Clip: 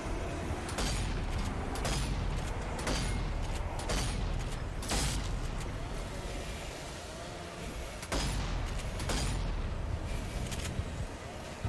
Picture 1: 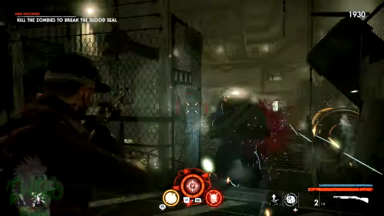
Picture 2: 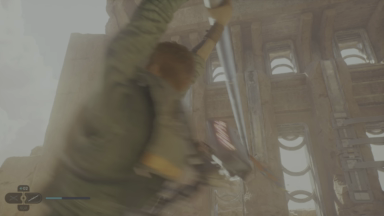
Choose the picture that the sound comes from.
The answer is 1